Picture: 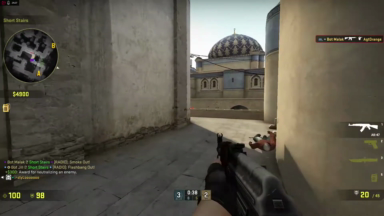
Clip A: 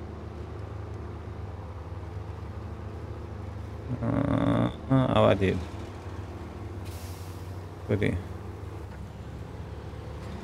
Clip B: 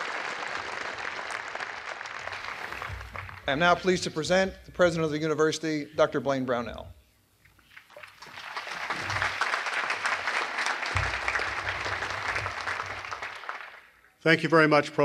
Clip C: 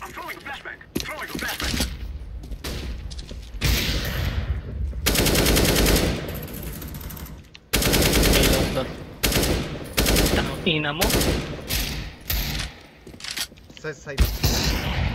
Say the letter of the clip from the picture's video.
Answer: C